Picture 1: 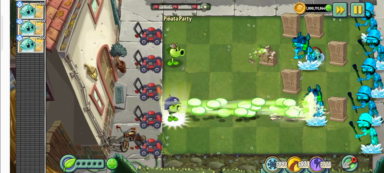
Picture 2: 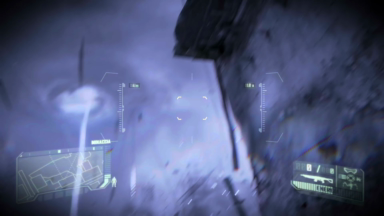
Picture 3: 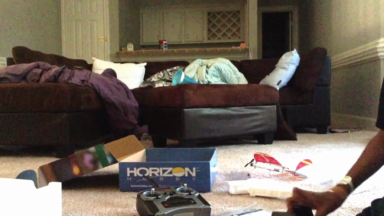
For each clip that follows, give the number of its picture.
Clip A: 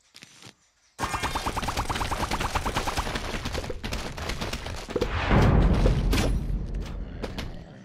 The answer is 1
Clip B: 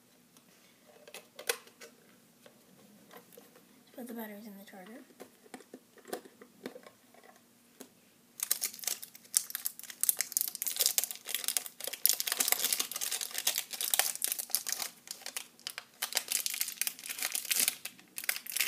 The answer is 3